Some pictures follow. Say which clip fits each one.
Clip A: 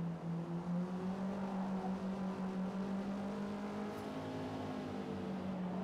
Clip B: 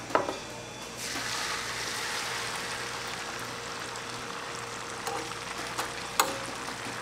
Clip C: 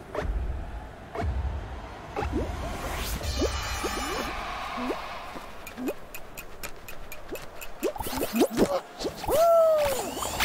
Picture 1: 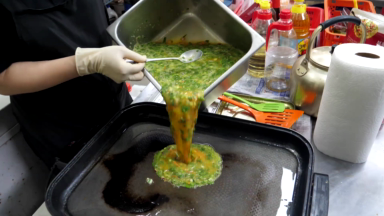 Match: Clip B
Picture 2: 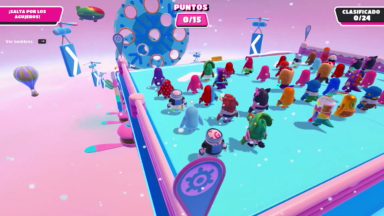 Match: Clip C